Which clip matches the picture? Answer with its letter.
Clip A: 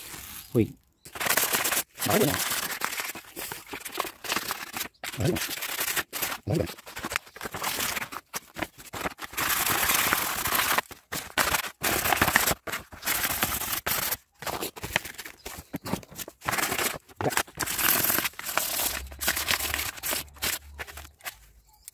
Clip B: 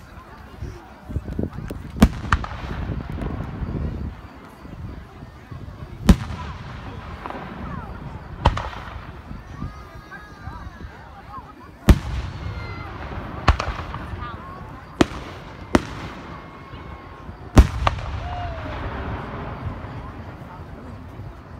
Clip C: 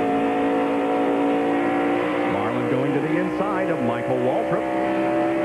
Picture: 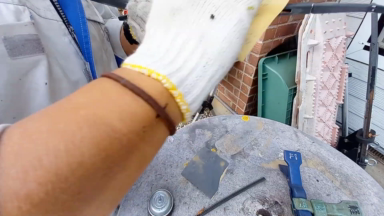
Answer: A